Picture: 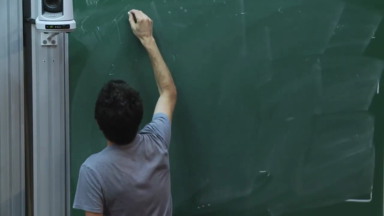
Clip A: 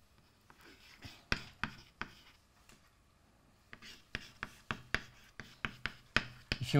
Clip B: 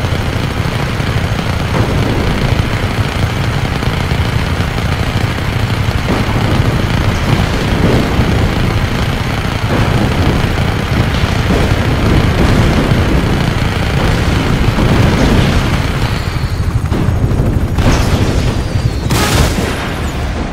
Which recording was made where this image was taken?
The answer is A